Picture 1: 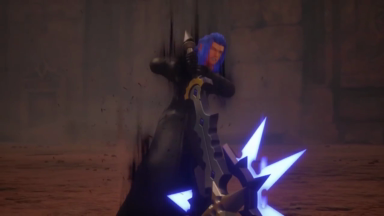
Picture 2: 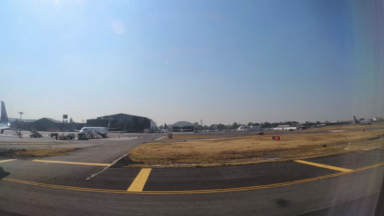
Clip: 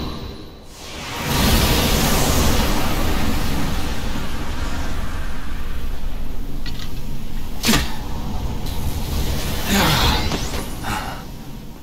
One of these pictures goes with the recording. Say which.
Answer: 1